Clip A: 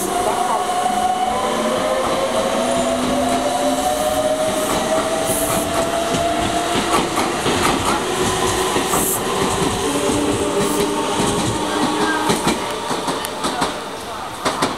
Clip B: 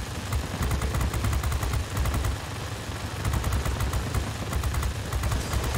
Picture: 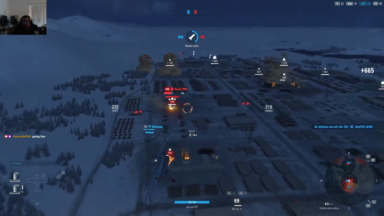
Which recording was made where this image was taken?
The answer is B